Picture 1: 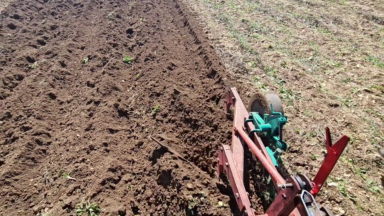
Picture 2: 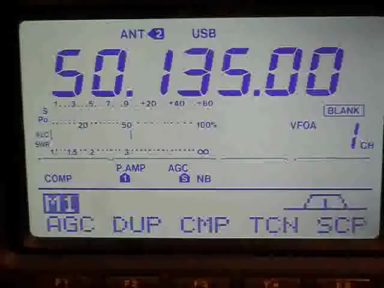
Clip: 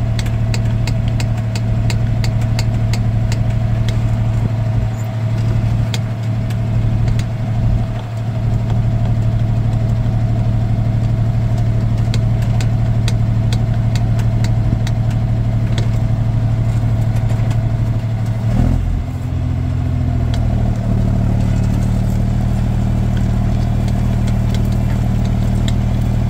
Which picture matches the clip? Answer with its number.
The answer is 1